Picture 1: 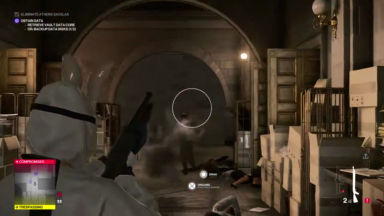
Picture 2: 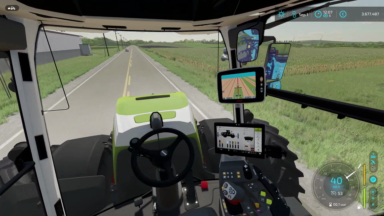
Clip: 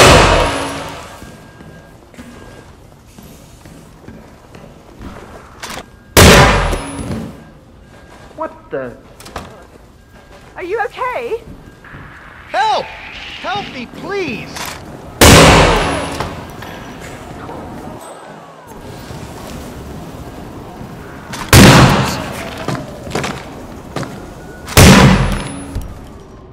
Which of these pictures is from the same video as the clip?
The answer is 1